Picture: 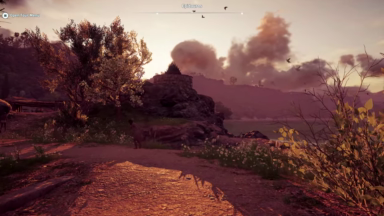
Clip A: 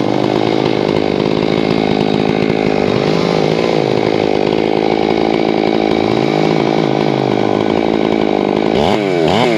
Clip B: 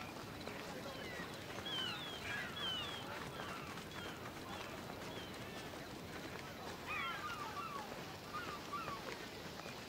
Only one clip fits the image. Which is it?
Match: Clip B